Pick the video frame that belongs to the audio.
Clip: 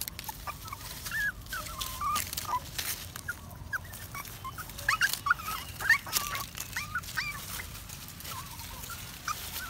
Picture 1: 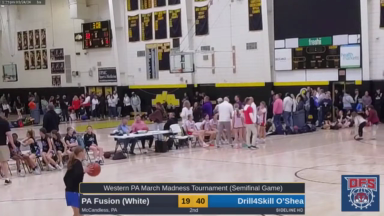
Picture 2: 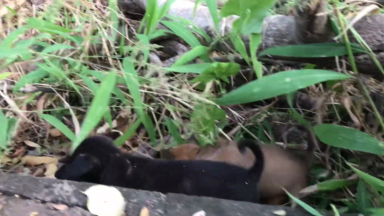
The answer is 2